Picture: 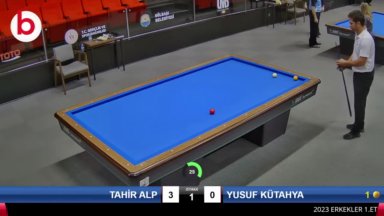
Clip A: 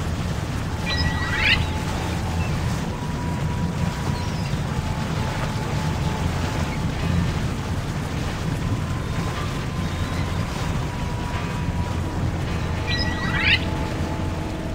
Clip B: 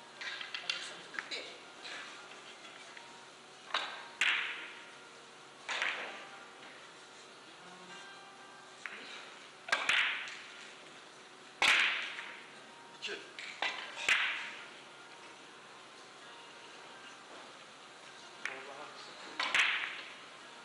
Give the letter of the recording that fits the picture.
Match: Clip B